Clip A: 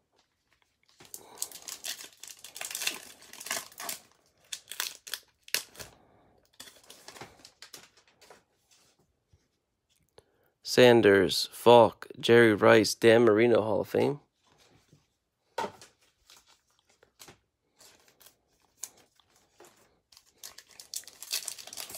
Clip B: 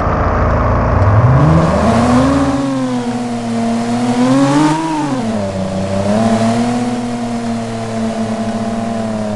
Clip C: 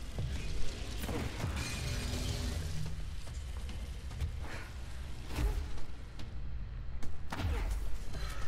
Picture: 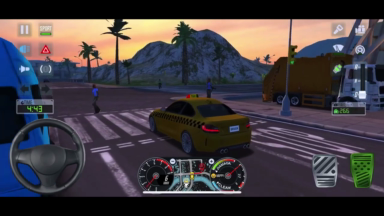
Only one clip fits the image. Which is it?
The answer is B